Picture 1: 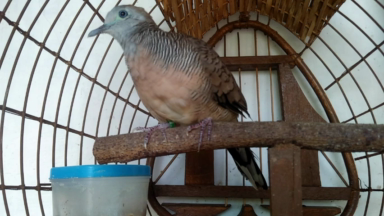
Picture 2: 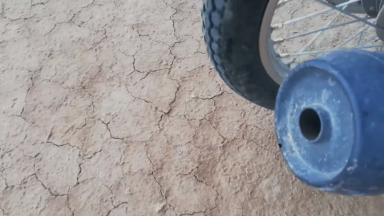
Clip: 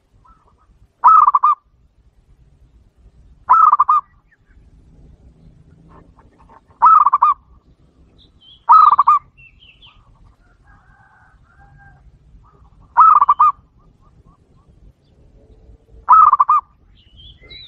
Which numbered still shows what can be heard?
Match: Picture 1